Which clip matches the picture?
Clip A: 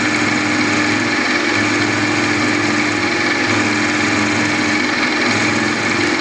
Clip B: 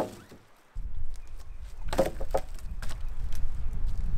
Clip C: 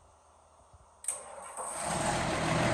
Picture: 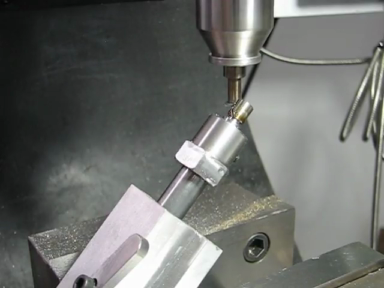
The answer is A